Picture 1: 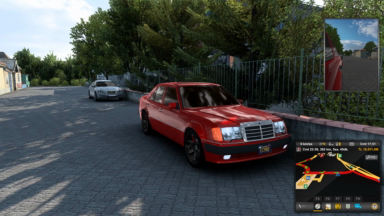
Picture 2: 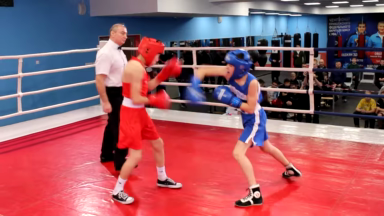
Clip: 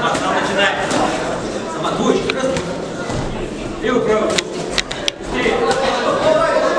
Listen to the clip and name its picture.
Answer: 2